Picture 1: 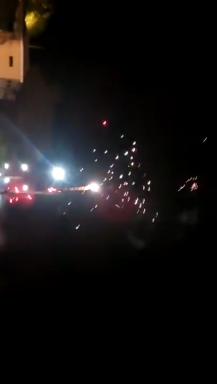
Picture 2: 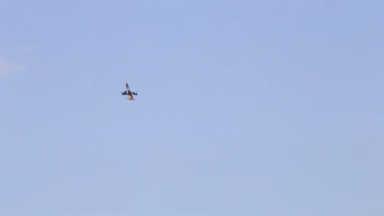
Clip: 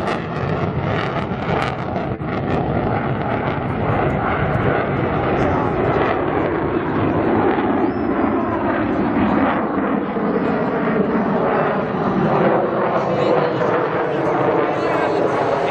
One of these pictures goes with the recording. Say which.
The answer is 2